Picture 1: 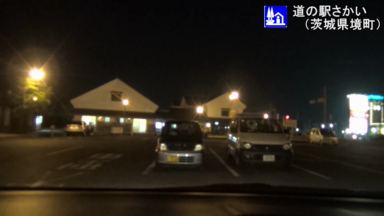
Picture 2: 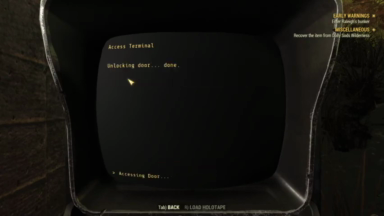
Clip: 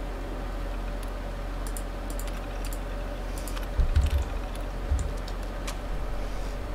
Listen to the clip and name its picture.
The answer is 2